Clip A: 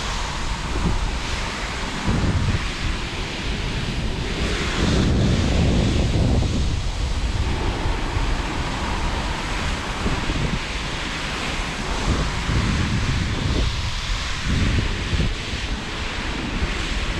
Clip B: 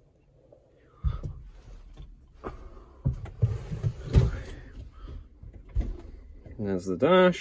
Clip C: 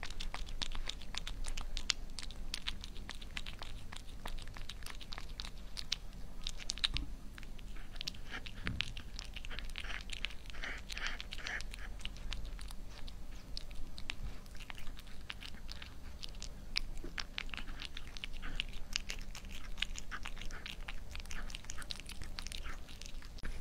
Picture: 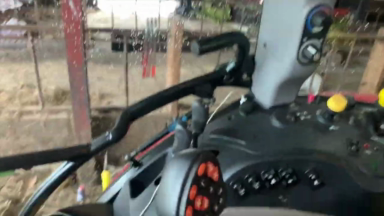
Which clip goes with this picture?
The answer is B